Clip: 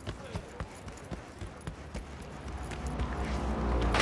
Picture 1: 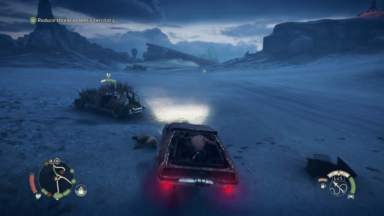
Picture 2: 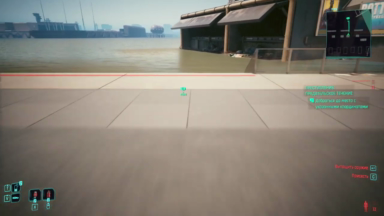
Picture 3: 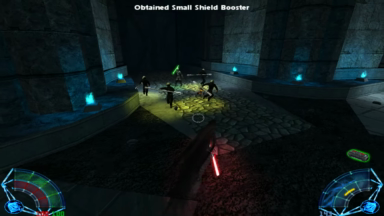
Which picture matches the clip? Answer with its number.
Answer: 2